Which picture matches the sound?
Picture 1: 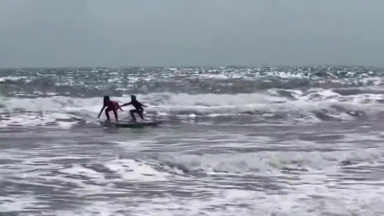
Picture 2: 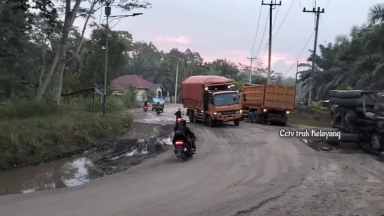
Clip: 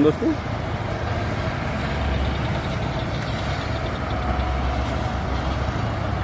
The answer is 2